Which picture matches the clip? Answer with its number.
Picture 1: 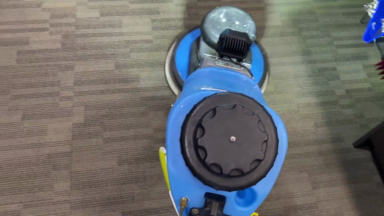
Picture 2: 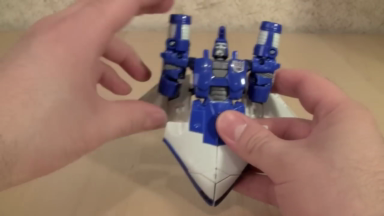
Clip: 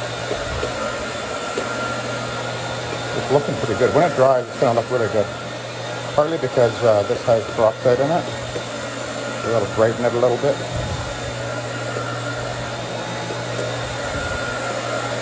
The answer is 1